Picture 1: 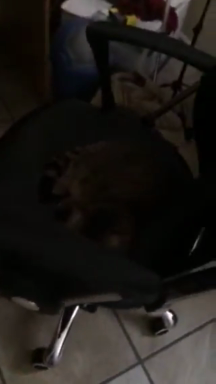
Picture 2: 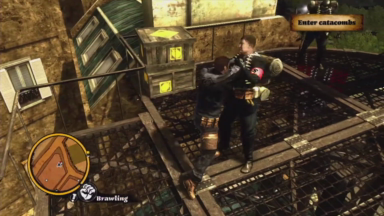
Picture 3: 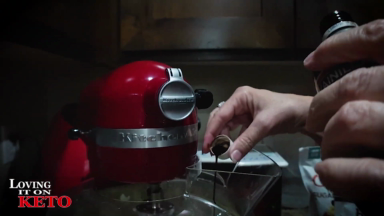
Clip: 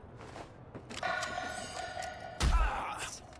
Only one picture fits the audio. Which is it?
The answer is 2